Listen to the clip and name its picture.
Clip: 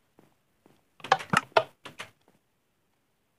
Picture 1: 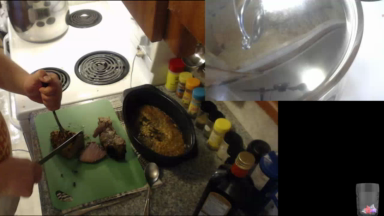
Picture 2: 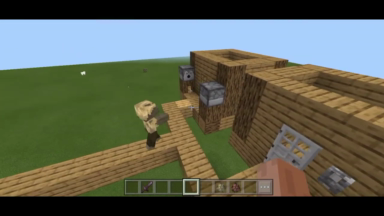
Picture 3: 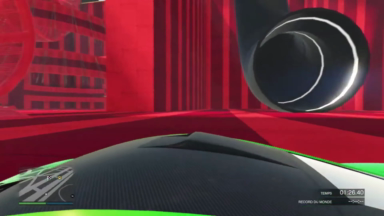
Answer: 2